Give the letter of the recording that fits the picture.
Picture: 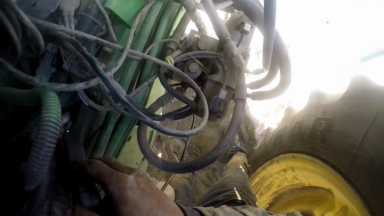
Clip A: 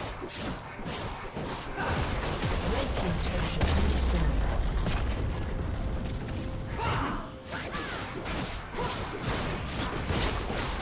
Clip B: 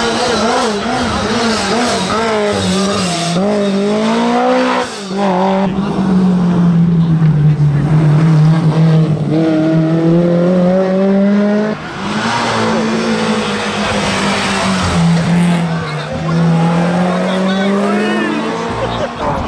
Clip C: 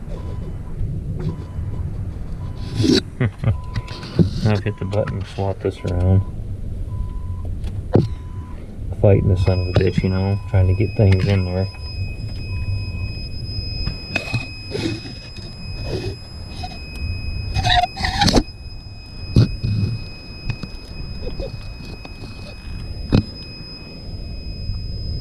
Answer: C